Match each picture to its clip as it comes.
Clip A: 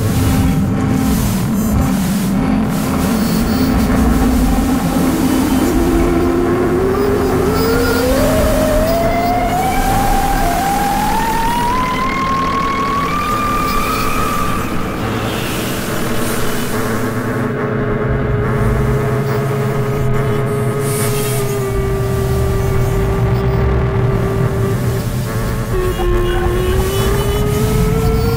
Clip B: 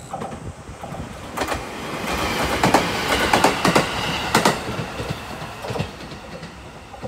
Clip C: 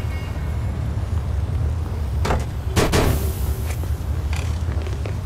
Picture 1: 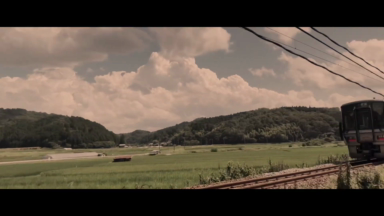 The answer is B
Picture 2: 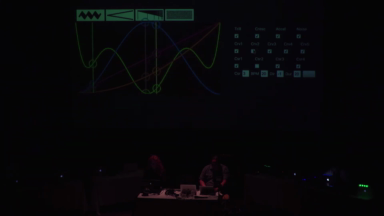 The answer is A